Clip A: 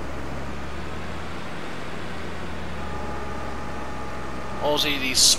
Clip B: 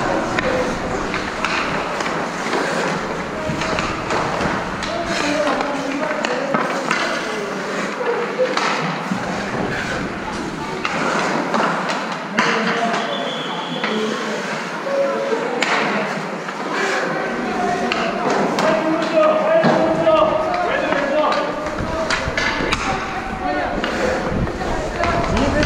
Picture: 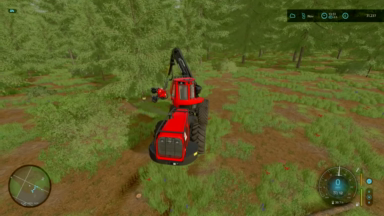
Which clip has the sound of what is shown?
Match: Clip A